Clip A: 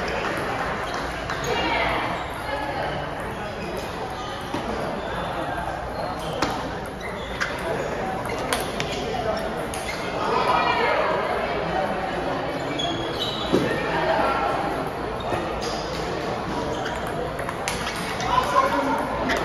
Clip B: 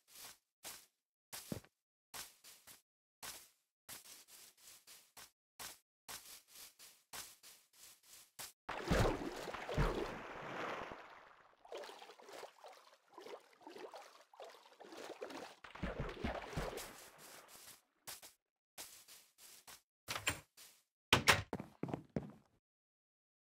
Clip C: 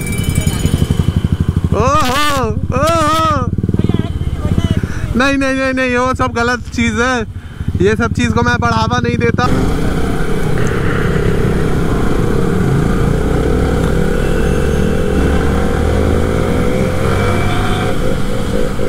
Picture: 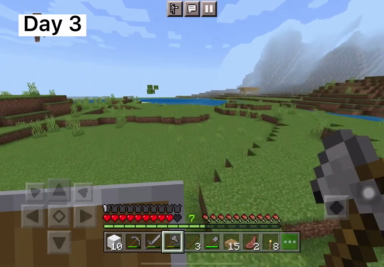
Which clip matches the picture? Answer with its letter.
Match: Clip B